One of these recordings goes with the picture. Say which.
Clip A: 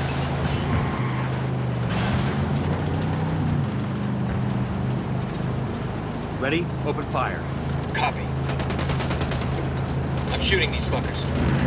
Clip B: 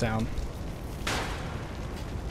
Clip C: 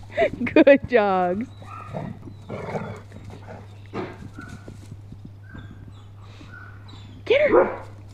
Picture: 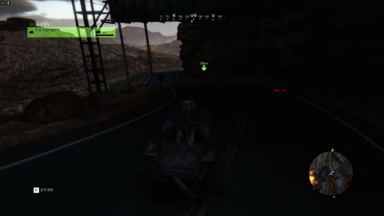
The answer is A